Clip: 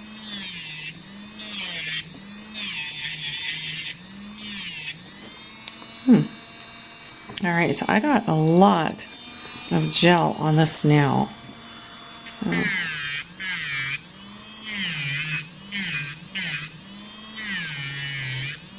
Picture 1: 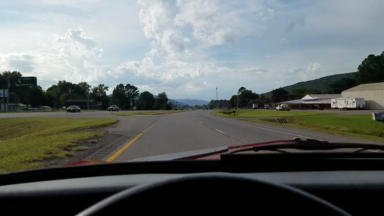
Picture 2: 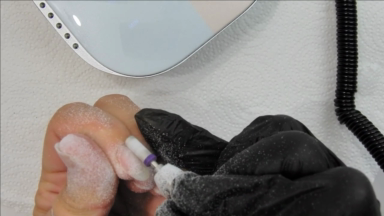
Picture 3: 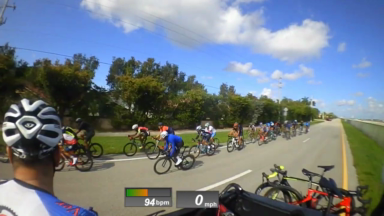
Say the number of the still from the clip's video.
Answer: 2